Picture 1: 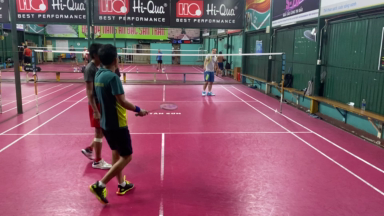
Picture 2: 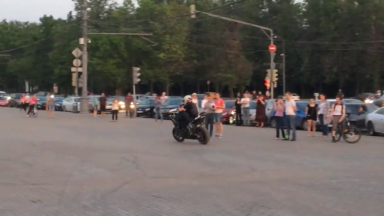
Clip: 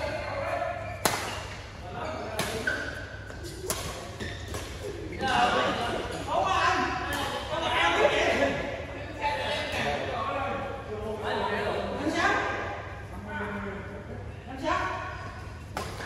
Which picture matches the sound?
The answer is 1